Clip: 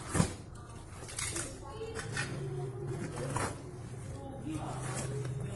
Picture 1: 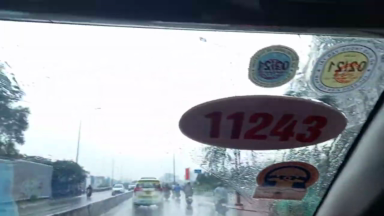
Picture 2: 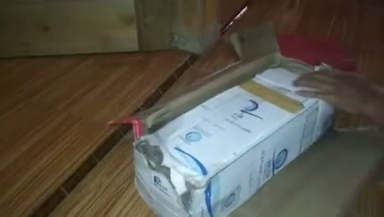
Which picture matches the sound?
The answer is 2